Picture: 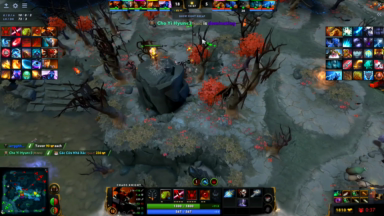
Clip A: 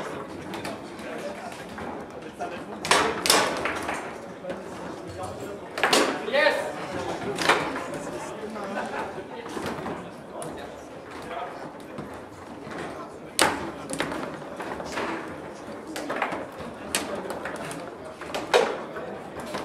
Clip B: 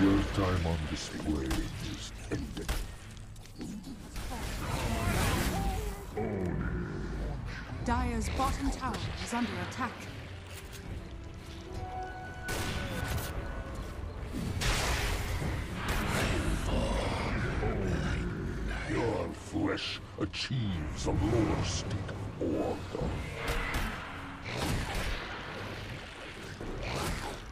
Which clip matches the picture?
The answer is B